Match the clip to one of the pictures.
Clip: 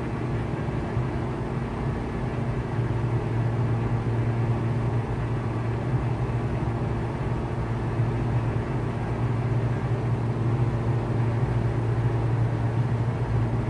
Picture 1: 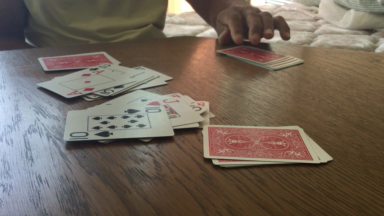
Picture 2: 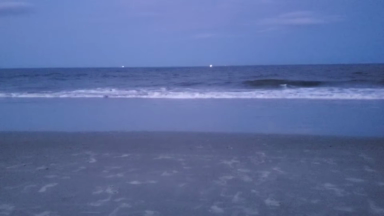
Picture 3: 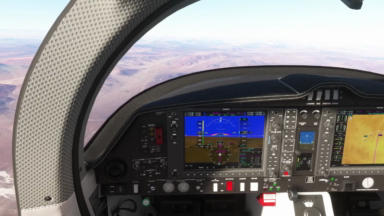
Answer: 3